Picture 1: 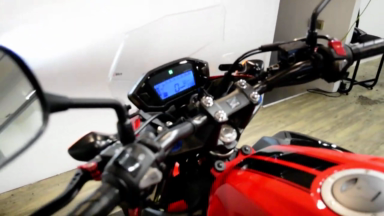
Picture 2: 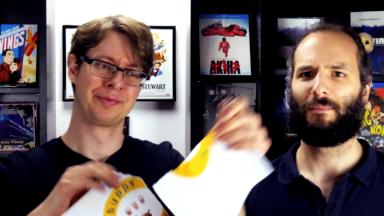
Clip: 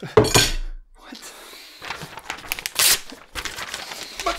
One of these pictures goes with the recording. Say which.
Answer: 2